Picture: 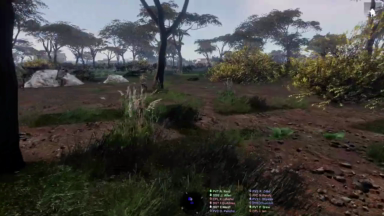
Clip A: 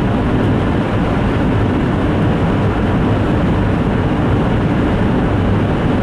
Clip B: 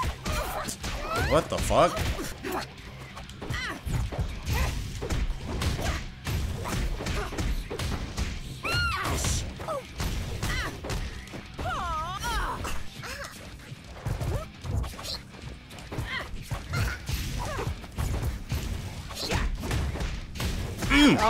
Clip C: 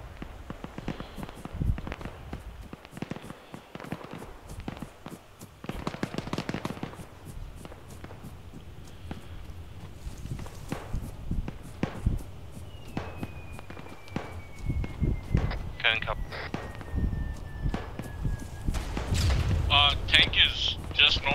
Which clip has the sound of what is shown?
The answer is C